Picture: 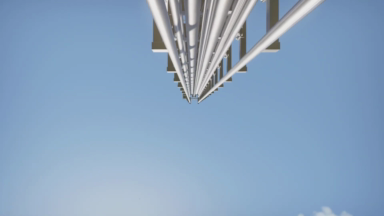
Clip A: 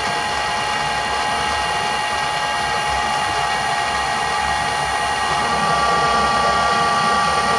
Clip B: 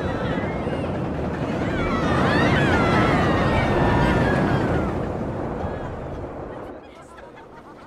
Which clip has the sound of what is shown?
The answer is B